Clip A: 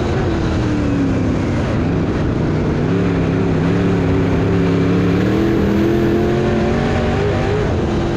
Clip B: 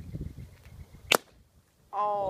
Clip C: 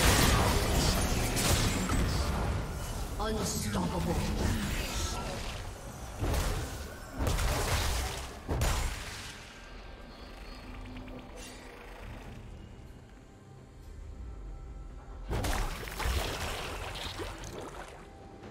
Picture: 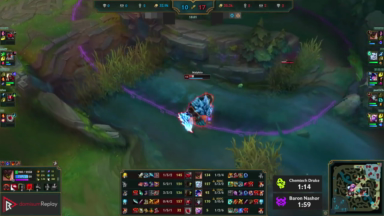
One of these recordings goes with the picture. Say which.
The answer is C